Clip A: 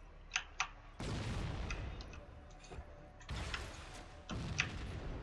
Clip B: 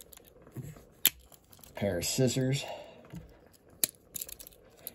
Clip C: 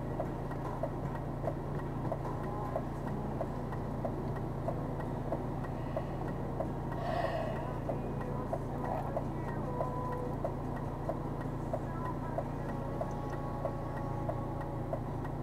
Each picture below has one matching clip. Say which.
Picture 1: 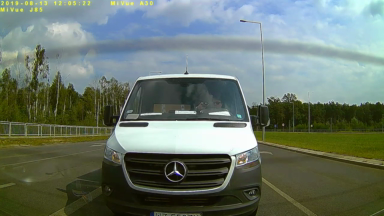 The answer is C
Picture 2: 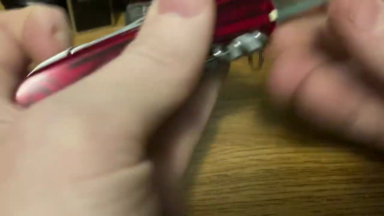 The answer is B